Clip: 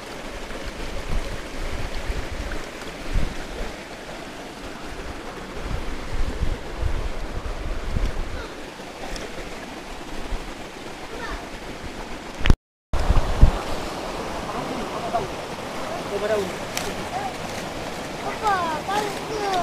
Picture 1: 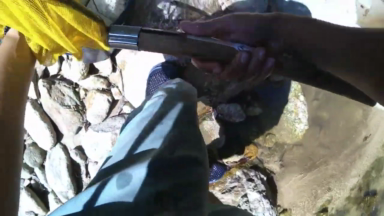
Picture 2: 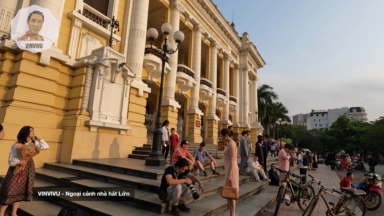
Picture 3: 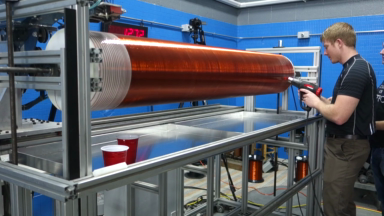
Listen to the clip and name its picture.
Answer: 1